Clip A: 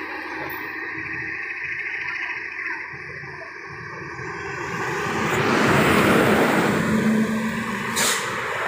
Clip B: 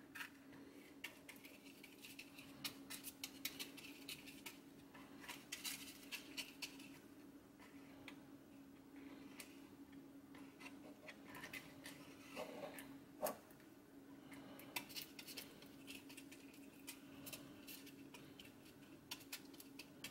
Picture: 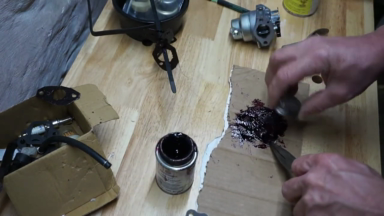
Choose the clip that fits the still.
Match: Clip B